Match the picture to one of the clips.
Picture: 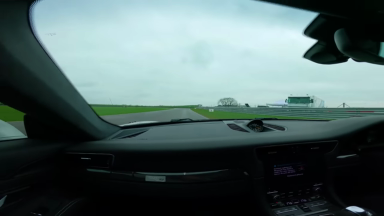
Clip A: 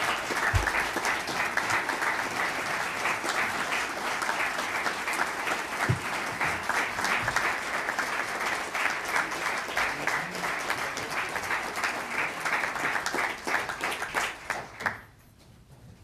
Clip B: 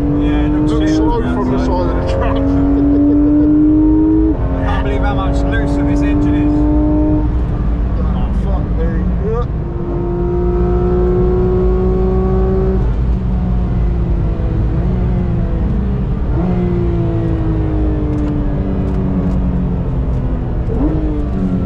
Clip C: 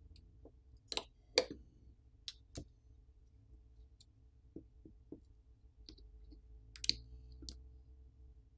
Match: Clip B